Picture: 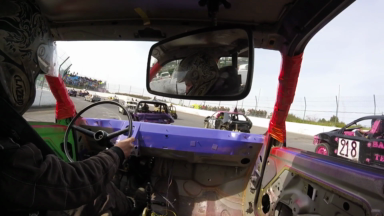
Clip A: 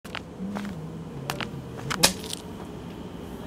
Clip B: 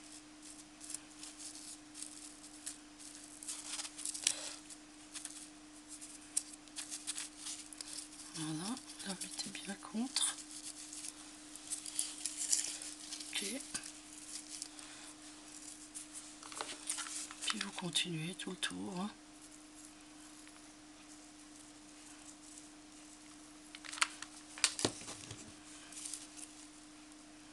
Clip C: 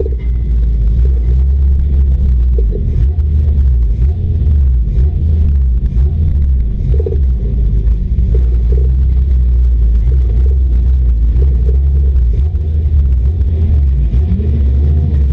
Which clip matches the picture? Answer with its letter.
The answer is C